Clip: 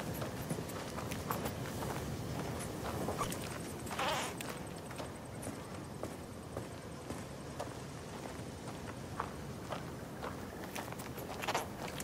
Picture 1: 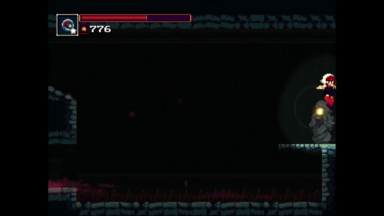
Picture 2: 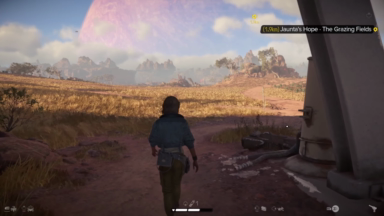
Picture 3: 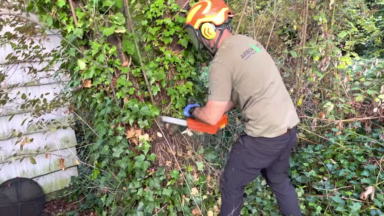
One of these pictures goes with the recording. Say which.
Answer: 2